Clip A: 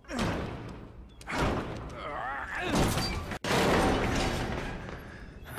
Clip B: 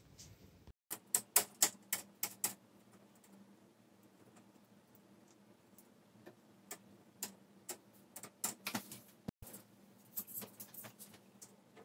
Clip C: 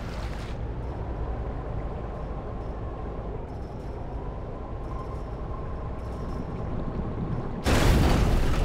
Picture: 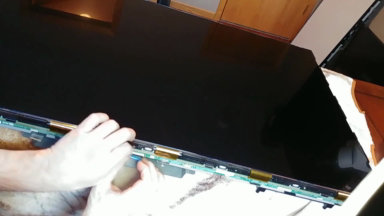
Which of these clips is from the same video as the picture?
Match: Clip B